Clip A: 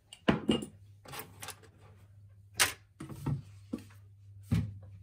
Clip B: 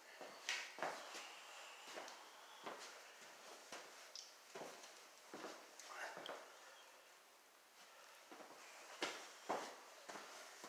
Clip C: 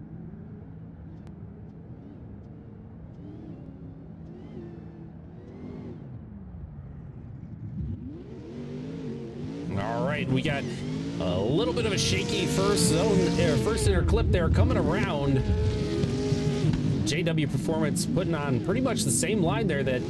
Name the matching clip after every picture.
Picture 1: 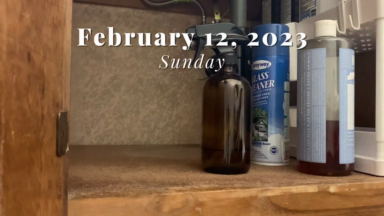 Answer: A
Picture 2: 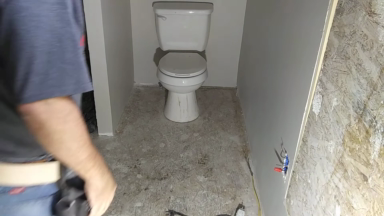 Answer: B